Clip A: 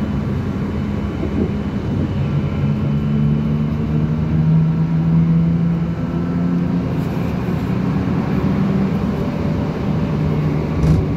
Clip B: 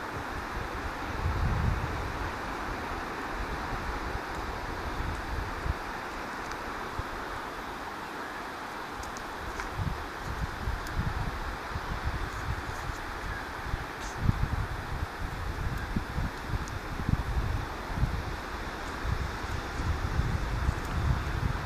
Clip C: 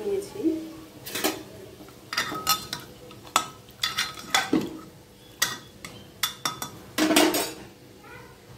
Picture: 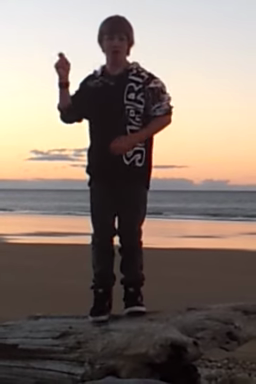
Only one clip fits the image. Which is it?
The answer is B